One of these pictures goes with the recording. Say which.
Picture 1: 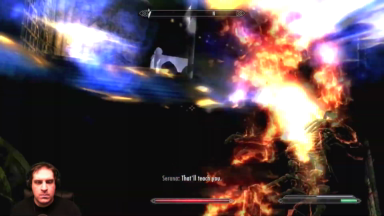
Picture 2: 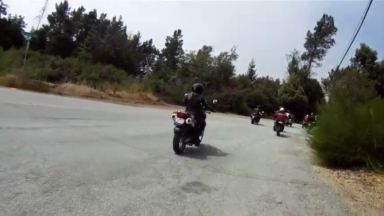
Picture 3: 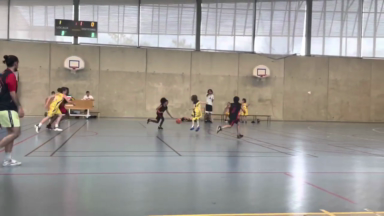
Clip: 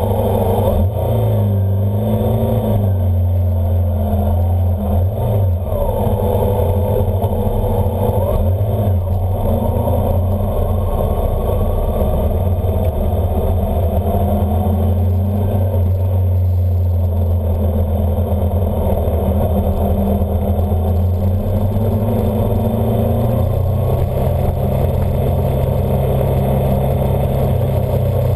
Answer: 2